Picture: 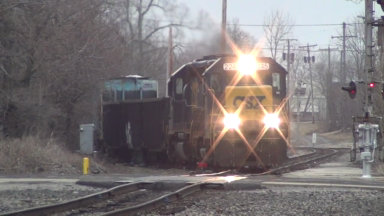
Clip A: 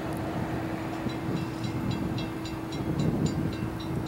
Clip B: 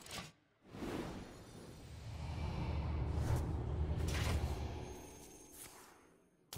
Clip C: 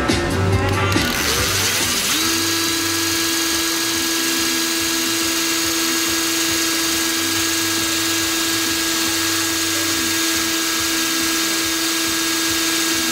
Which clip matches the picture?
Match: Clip A